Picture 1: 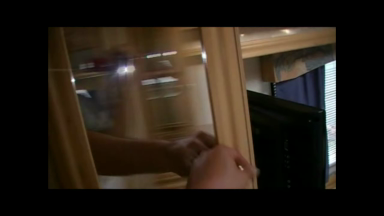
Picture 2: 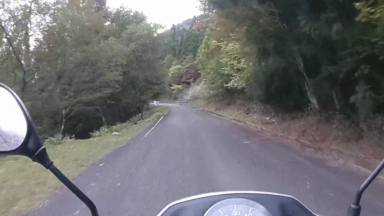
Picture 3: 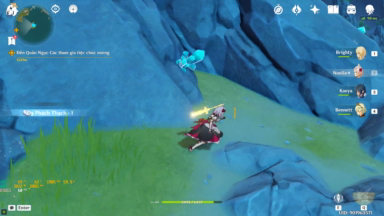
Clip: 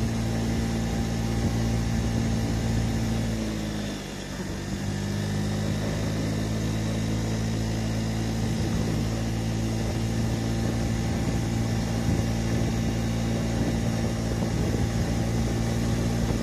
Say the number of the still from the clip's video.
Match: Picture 2